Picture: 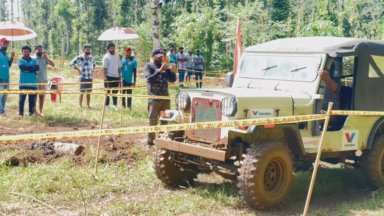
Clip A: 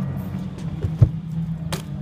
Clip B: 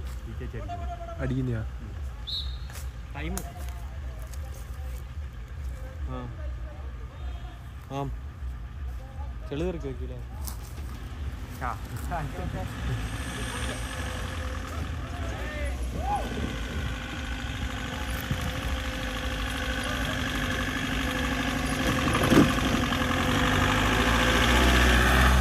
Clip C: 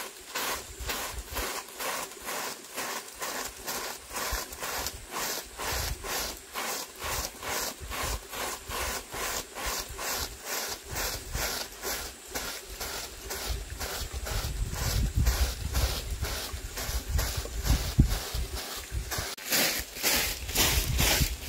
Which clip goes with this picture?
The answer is B